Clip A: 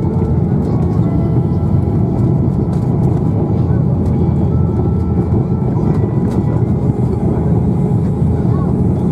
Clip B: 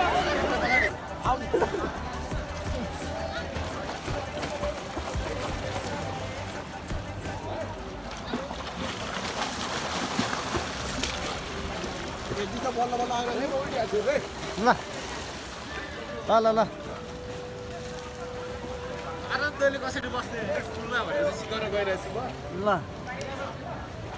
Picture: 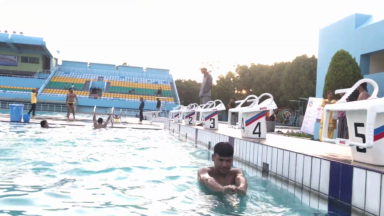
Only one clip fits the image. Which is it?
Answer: B